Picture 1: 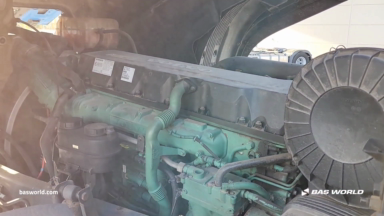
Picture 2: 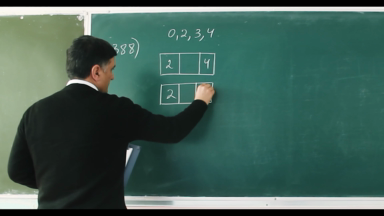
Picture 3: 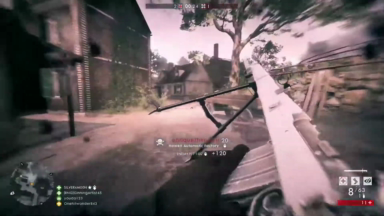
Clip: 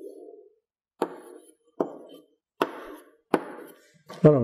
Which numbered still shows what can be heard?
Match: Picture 2